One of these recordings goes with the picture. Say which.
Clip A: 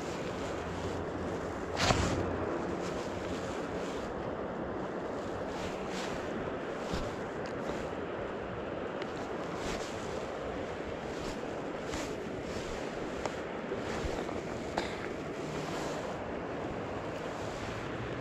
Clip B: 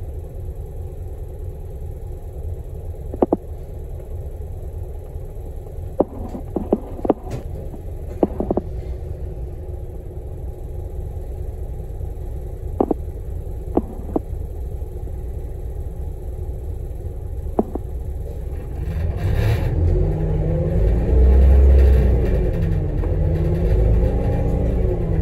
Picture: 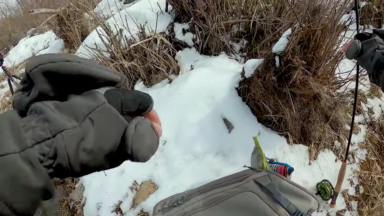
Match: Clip A